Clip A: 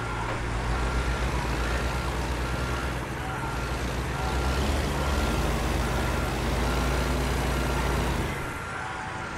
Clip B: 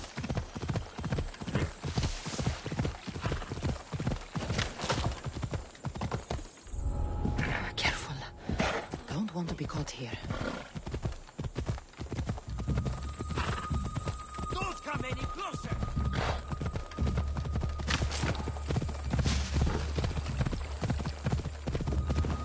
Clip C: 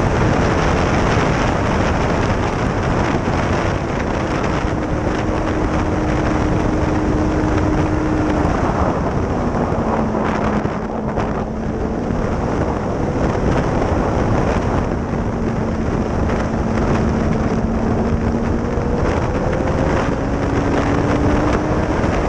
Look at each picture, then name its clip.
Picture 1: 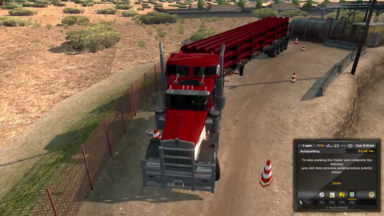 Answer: A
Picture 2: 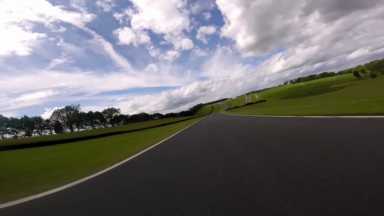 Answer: C